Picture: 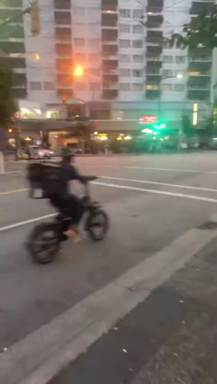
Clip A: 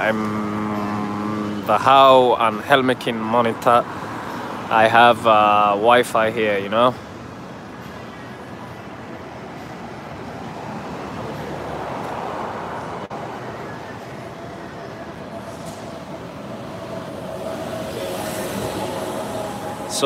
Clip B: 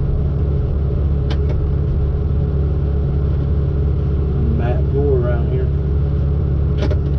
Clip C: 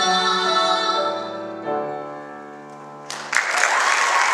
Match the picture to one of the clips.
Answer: A